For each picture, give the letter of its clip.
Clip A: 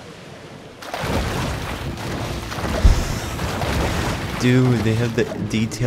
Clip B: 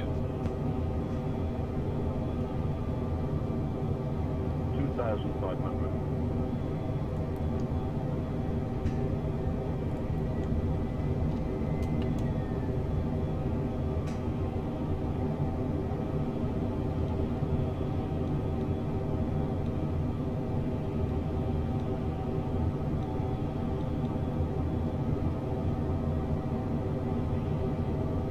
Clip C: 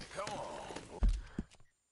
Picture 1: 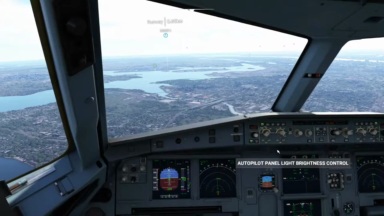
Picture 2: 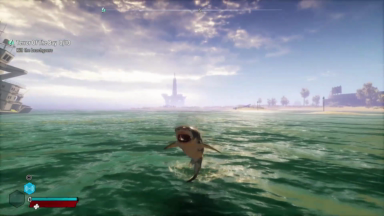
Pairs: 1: B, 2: A